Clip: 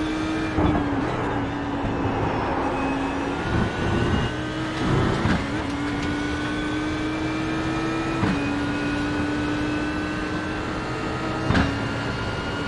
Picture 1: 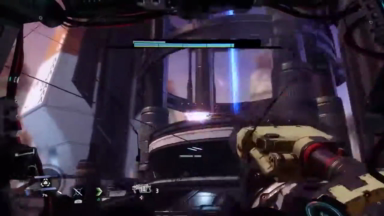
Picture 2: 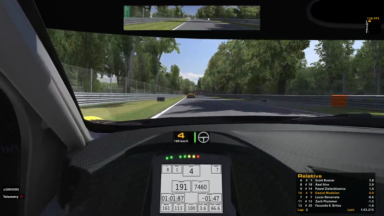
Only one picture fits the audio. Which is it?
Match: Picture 2